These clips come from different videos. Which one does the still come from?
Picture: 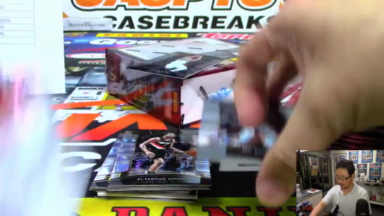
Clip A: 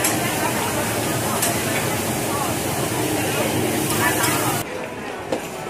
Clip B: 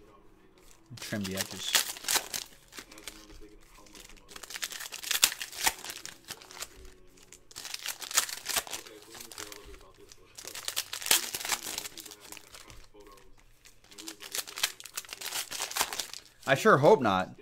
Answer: B